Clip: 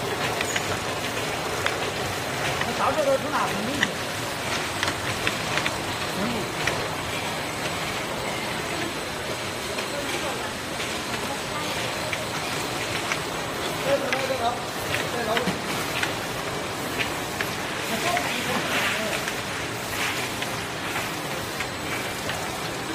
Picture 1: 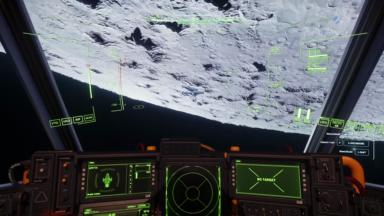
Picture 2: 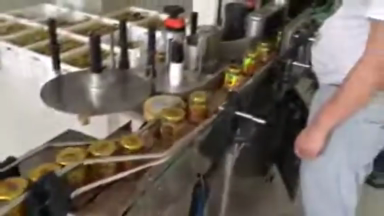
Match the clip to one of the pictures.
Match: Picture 2